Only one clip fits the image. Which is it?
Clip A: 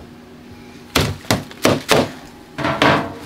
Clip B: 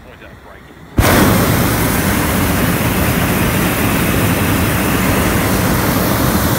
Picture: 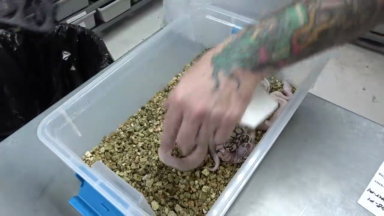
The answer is A